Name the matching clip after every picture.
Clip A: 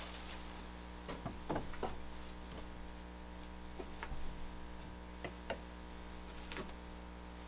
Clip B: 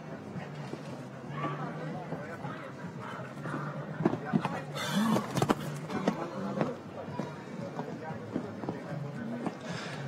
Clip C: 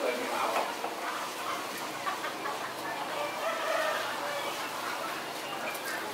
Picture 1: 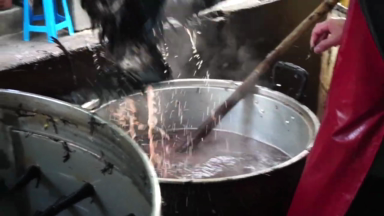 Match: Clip C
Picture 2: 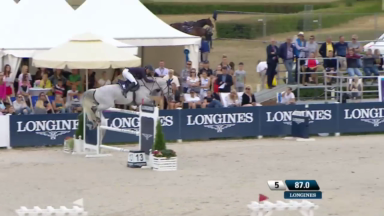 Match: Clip B